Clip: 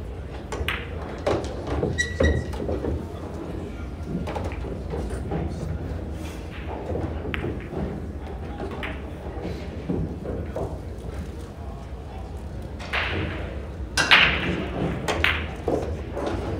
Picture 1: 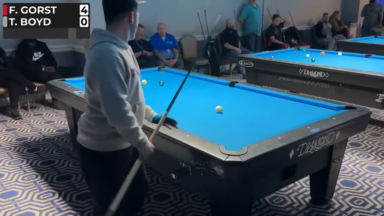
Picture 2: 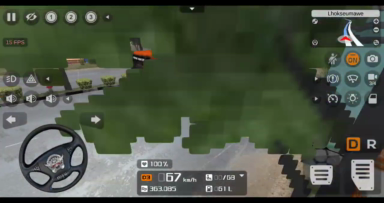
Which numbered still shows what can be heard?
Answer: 1